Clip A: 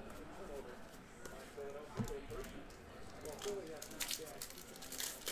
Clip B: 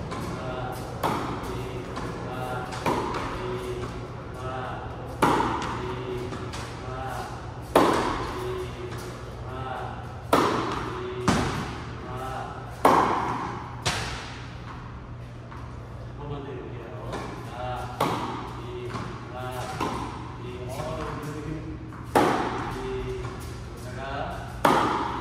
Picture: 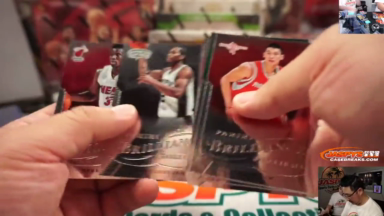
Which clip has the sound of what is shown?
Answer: A